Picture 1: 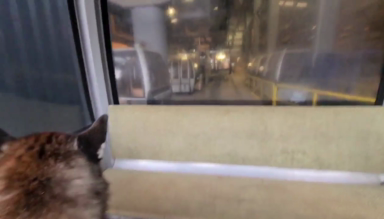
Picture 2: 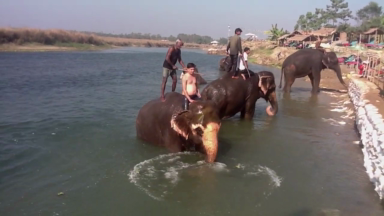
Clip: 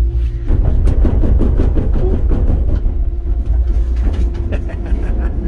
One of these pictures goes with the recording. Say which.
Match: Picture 1